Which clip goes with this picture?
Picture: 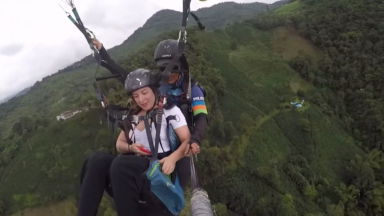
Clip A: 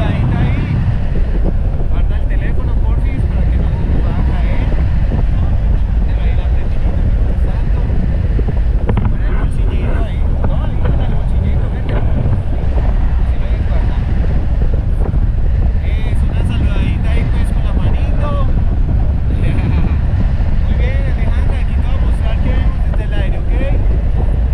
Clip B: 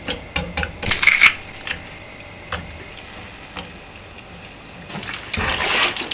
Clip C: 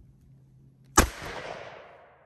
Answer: A